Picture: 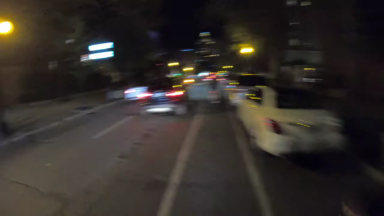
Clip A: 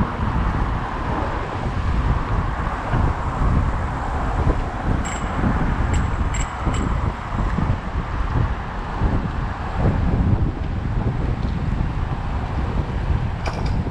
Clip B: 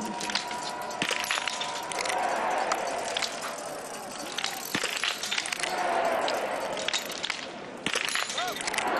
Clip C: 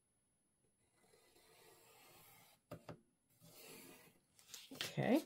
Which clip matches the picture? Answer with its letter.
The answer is A